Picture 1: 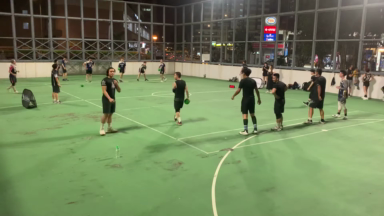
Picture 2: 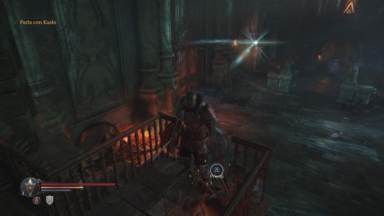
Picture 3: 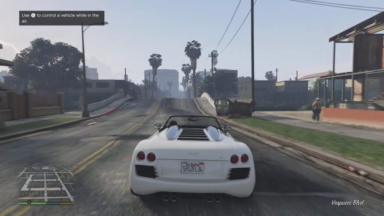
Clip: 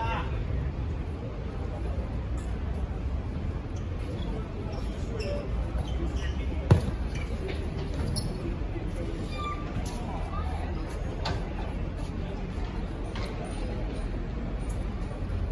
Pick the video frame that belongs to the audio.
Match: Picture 1